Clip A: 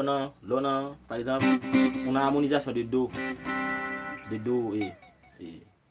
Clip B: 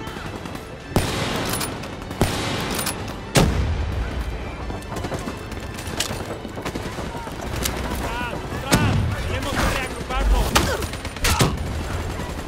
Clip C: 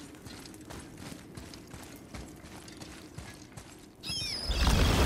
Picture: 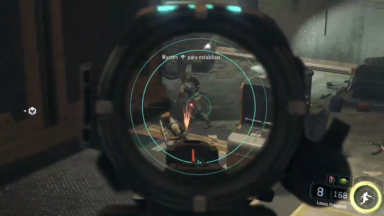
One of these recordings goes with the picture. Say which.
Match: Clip B